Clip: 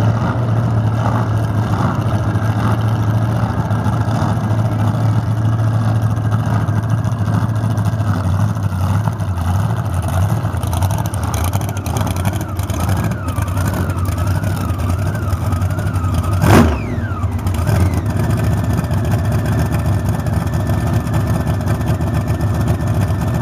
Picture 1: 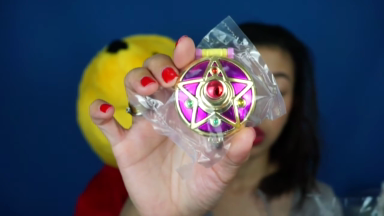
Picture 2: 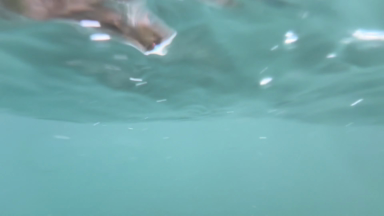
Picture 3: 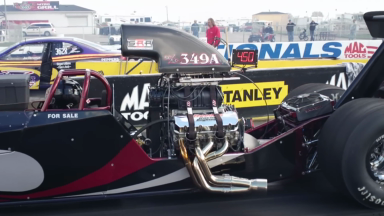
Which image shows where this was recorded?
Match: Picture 3